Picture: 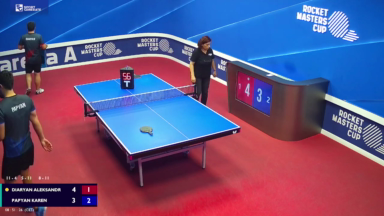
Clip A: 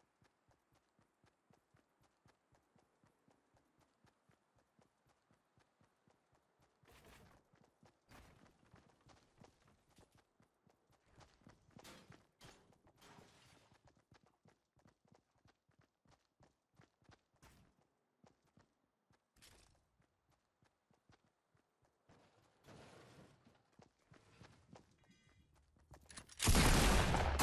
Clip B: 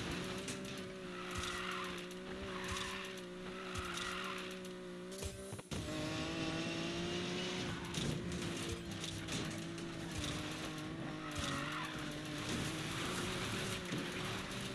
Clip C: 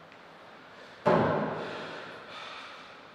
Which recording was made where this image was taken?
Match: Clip C